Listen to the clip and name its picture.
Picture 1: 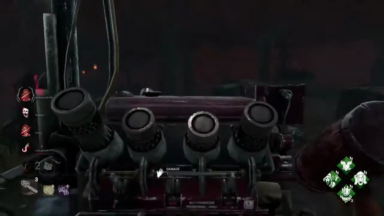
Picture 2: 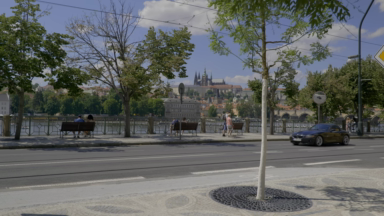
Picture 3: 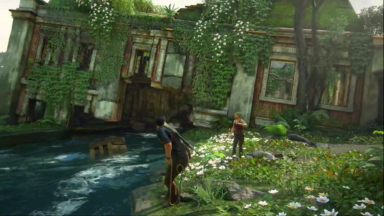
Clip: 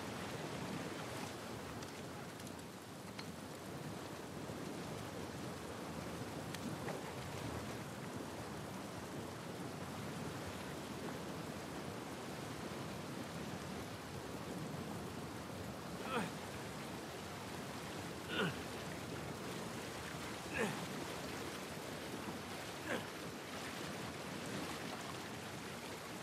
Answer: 3